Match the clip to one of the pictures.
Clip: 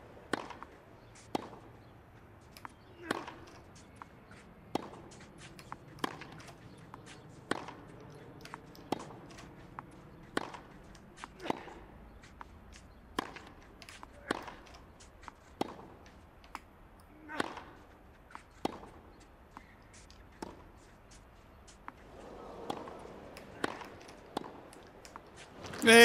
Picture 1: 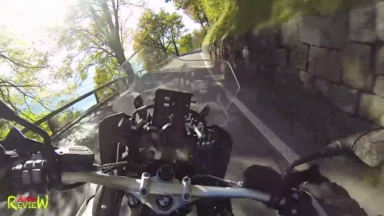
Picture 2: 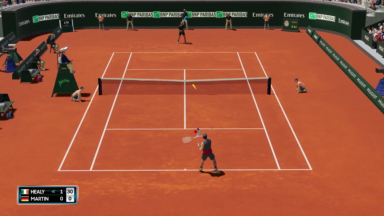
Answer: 2